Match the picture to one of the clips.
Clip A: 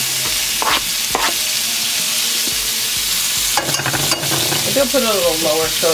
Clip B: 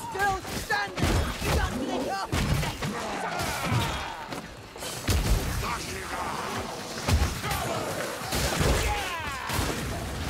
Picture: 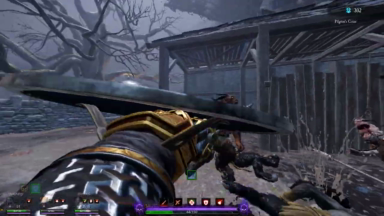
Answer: B